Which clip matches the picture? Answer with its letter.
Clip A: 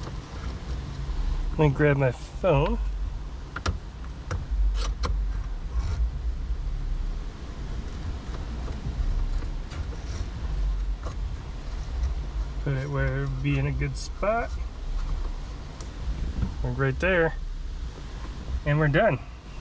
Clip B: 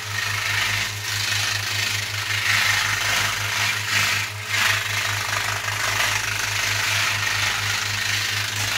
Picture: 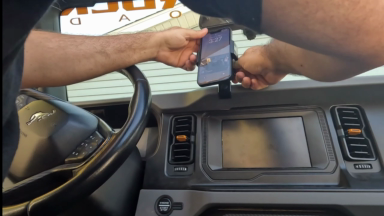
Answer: A